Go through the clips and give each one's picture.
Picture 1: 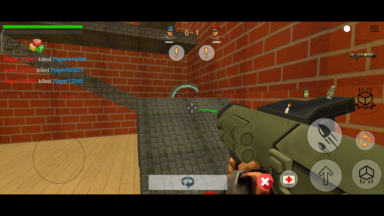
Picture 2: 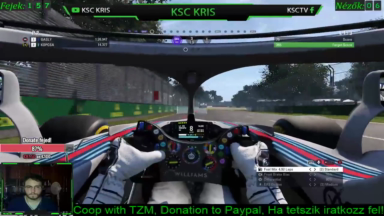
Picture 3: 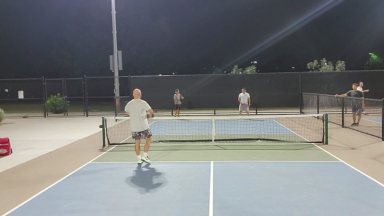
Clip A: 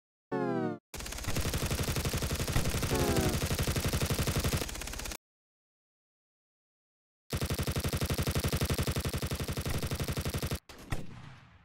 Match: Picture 1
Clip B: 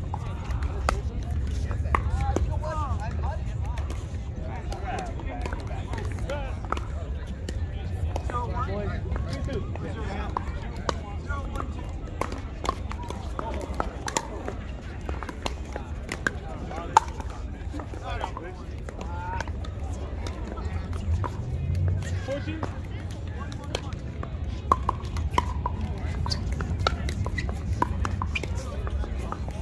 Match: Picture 3